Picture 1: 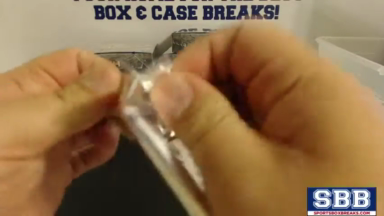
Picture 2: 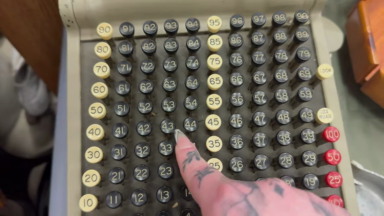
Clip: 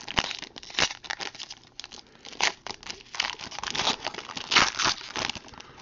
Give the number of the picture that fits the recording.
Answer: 1